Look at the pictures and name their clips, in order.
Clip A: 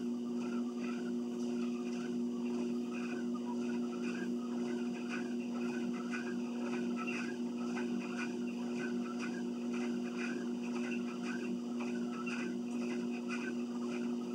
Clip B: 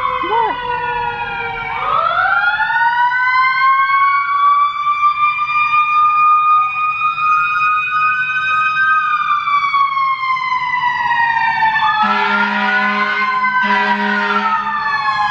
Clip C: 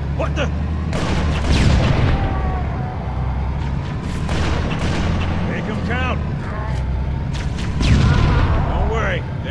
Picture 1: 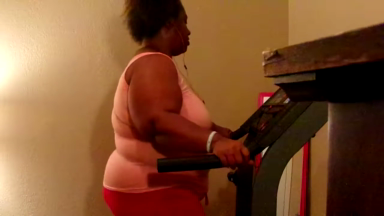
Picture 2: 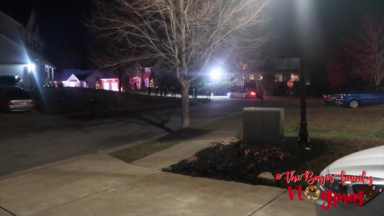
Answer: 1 A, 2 B